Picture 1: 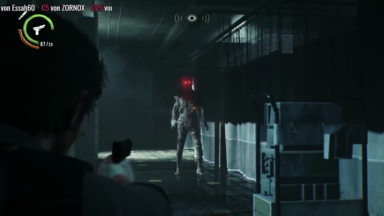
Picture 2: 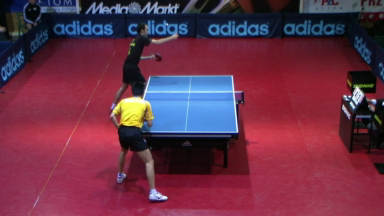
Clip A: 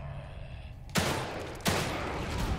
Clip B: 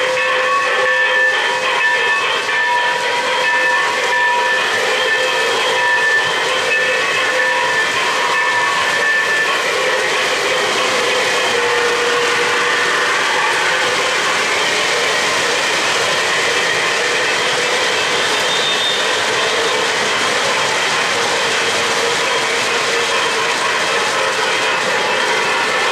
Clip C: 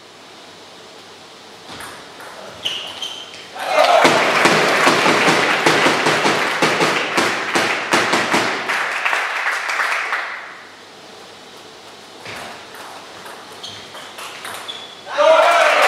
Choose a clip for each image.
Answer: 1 A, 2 C